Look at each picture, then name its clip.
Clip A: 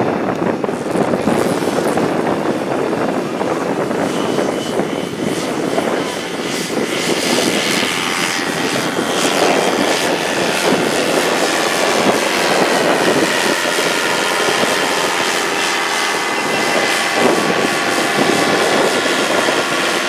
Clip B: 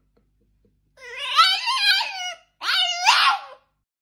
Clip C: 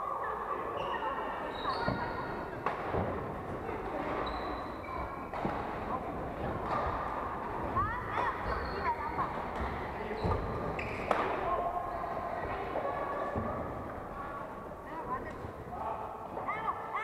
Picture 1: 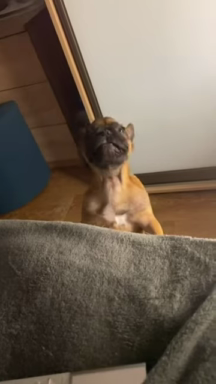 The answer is B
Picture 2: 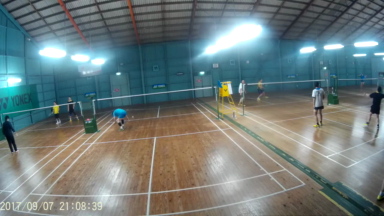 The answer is C